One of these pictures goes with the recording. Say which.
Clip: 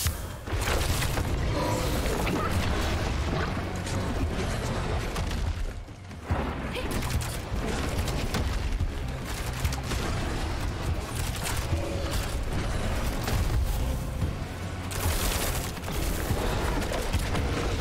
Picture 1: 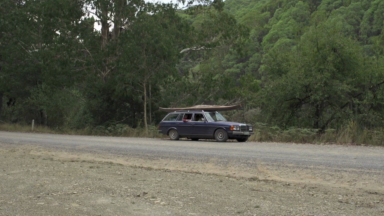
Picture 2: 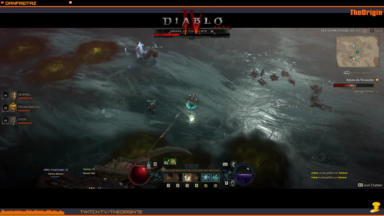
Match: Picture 2